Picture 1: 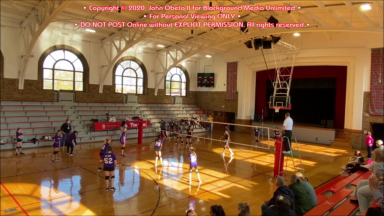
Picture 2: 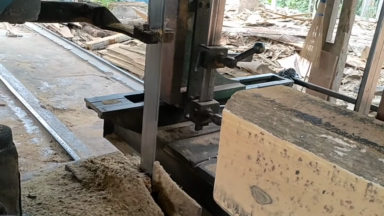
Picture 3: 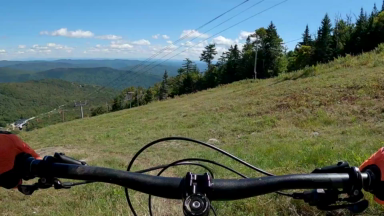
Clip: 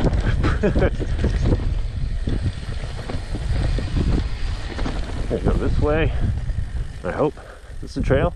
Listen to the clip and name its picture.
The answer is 3